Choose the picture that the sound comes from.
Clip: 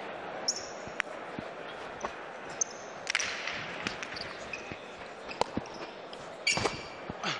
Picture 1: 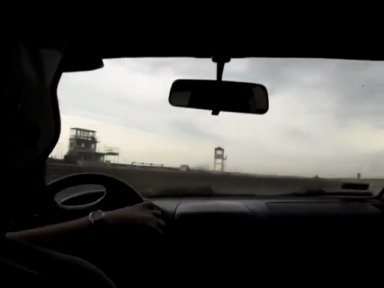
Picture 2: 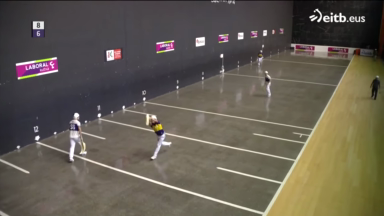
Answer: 2